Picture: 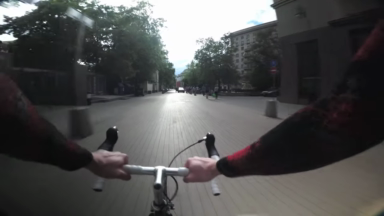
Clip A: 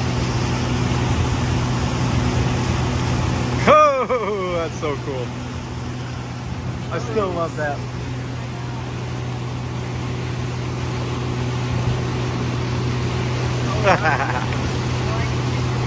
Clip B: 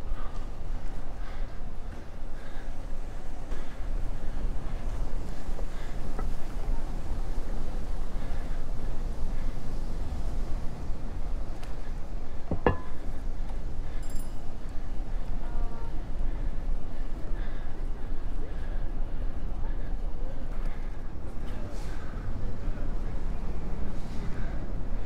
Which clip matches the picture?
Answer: B